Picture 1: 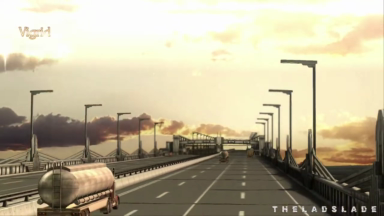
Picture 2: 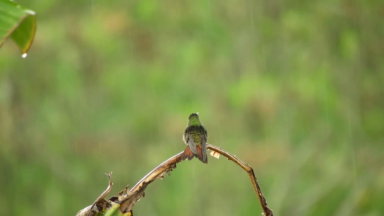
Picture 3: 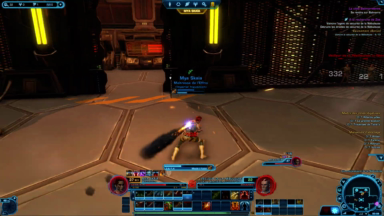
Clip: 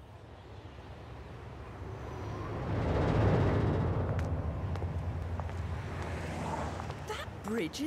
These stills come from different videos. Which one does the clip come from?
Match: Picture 1